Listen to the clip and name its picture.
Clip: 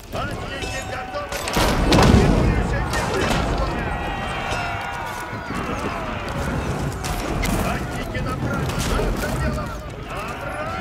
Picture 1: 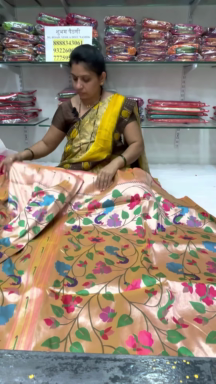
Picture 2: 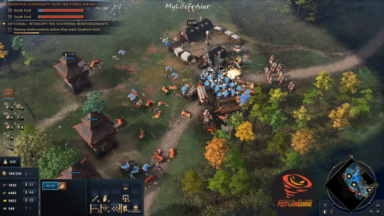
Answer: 2